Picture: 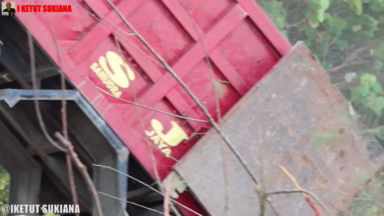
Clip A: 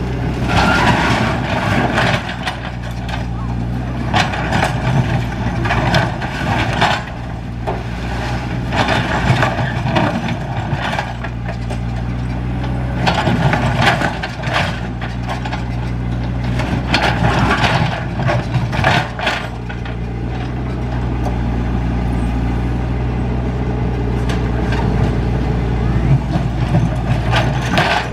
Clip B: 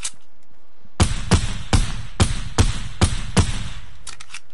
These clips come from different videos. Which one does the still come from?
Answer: A